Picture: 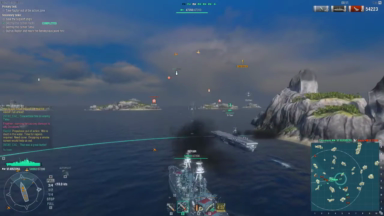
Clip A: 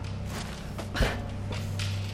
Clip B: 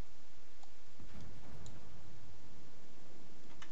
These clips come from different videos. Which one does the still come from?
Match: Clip B